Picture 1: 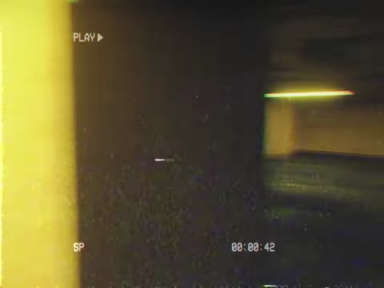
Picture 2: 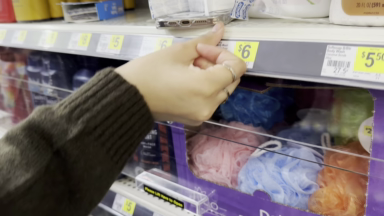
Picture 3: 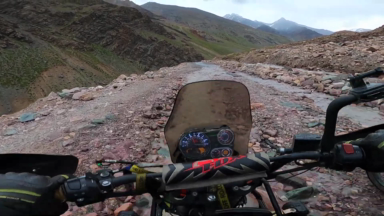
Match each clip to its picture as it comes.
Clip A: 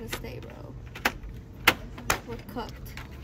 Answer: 2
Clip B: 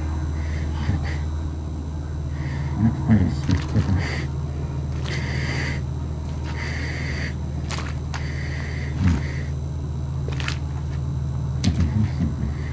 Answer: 1